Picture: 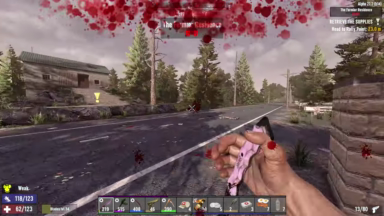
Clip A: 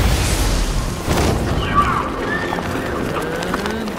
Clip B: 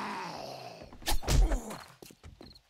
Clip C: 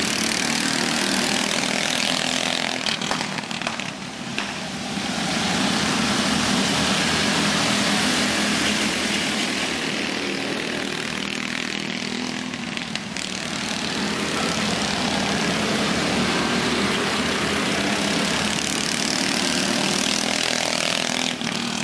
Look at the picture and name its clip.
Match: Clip B